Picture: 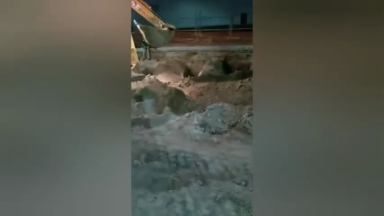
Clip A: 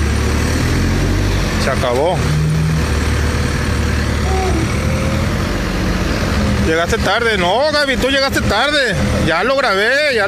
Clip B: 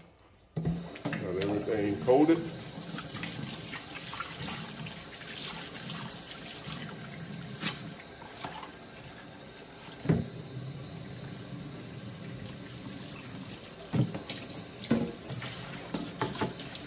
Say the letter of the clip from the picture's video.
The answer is A